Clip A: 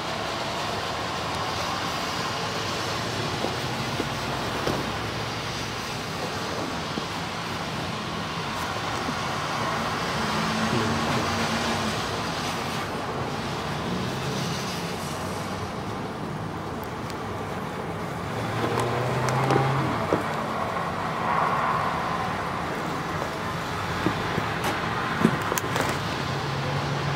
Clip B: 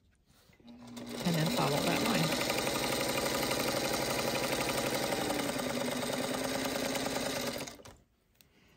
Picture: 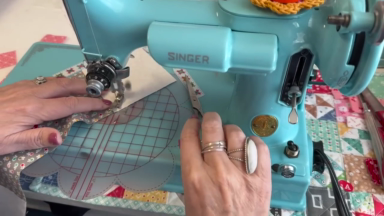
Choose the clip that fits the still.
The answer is B